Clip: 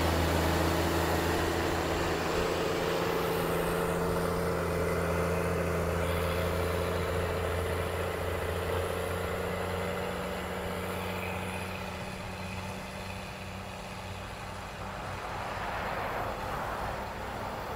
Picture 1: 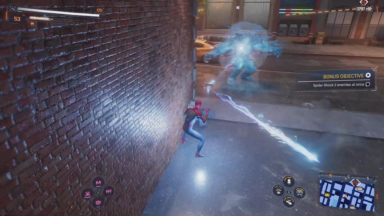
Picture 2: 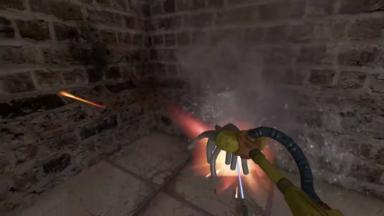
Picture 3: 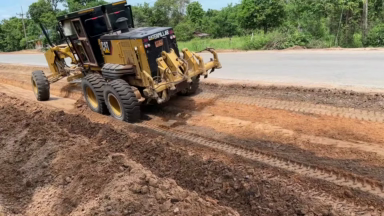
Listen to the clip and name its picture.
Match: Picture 3